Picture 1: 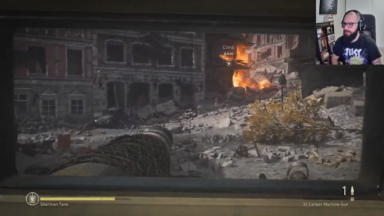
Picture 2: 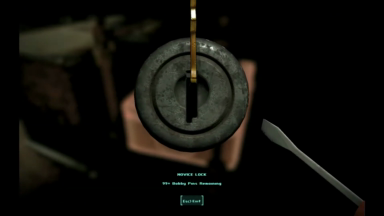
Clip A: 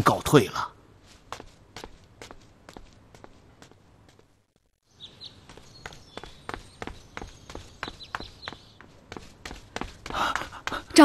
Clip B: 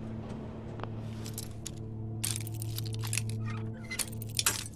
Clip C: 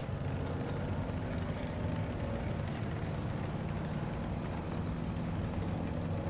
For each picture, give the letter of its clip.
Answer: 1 C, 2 B